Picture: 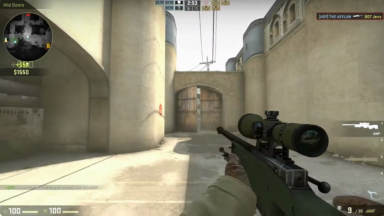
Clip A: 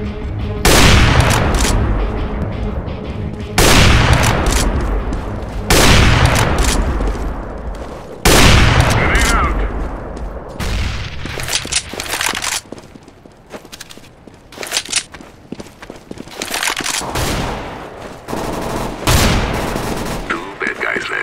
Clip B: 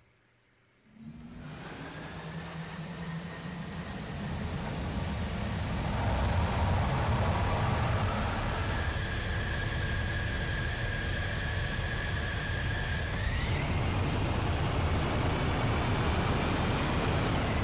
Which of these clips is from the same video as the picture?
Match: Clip A